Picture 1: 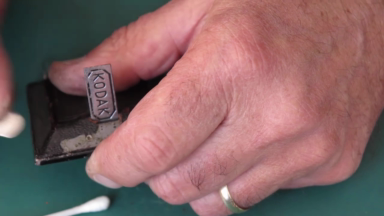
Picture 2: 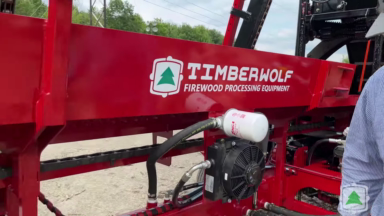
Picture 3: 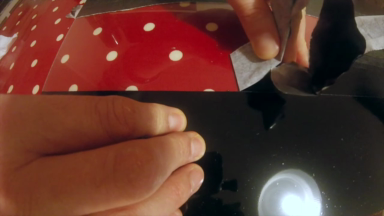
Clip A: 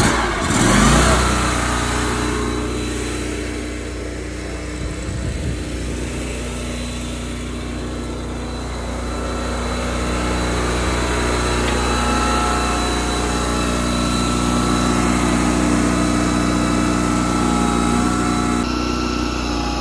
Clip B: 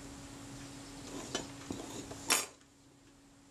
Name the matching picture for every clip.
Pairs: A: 2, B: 1